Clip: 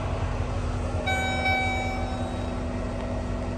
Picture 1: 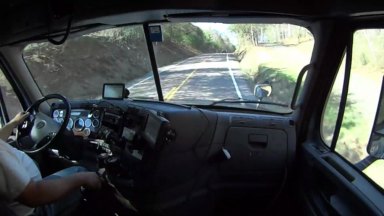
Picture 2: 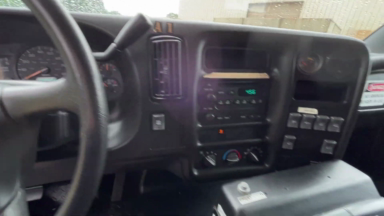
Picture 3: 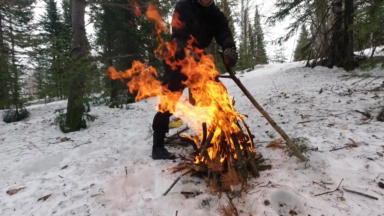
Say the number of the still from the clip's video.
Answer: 2